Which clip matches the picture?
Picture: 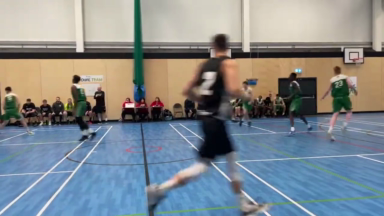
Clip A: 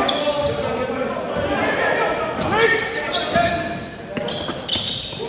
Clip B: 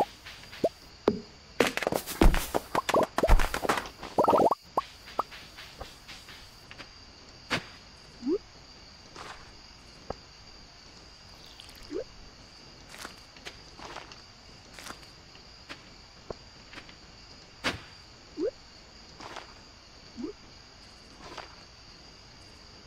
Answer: A